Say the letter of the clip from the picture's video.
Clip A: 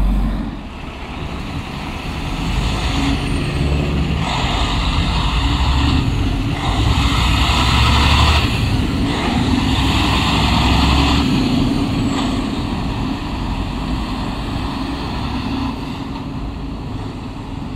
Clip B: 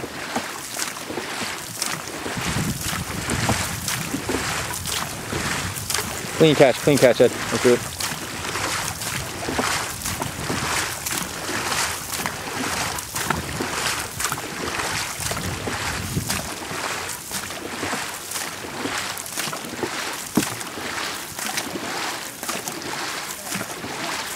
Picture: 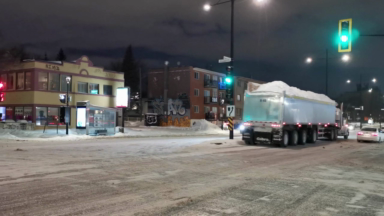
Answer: A